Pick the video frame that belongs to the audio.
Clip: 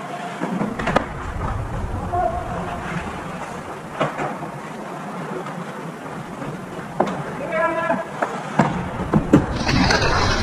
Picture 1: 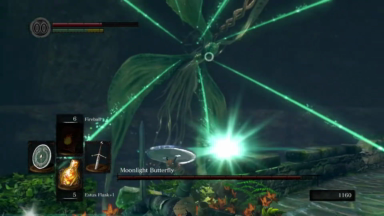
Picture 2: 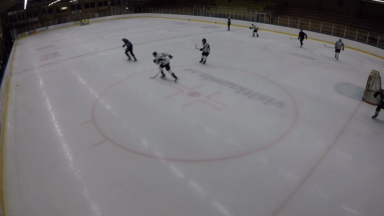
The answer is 2